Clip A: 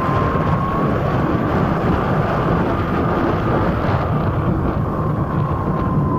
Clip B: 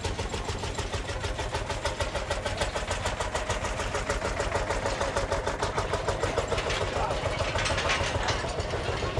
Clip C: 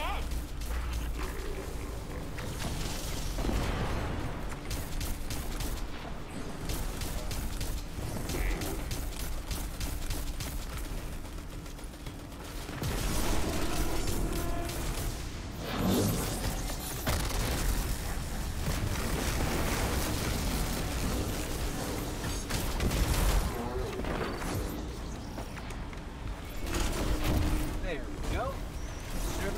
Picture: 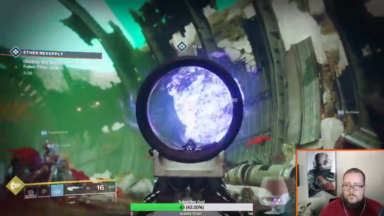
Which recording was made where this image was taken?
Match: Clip C